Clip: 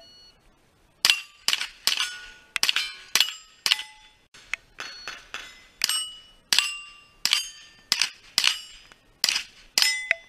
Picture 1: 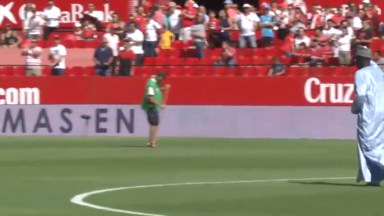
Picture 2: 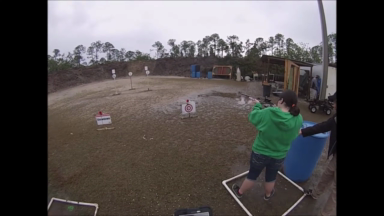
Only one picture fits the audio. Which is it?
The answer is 2